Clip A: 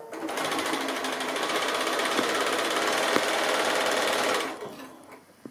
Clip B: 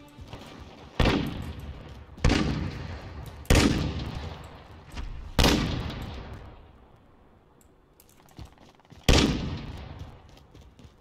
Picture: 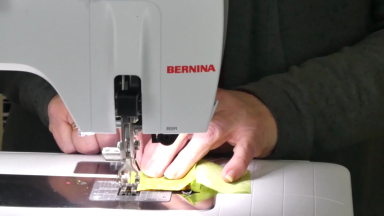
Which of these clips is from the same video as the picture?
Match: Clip A